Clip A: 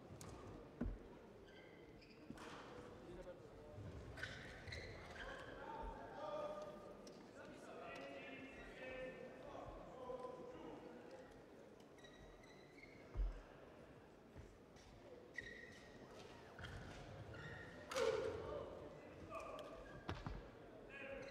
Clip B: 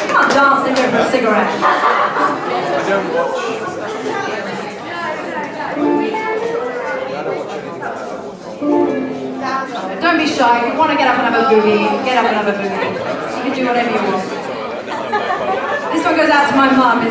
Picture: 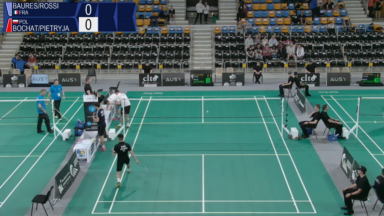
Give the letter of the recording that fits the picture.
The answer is A